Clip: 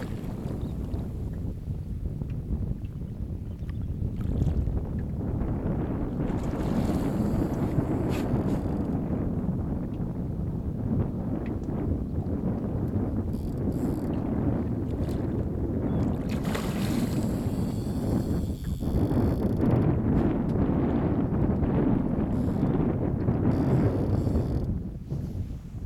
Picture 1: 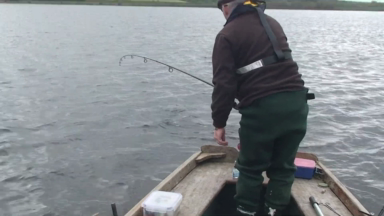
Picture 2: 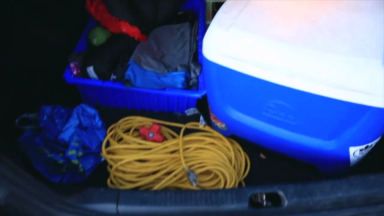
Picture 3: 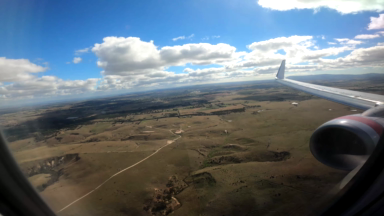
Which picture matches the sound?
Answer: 1